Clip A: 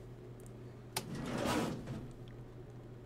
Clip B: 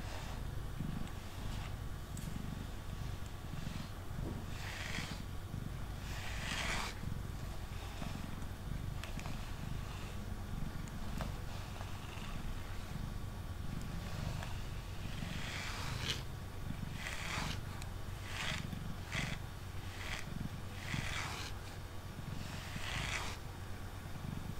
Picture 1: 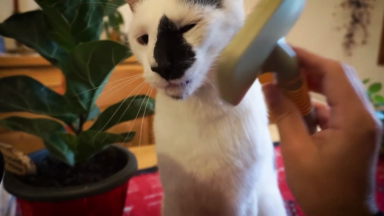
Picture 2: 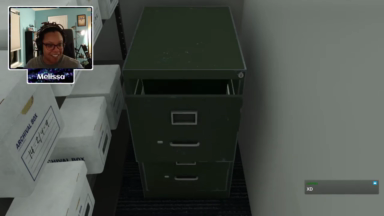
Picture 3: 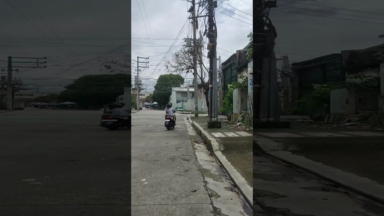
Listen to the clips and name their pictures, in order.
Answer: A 2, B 1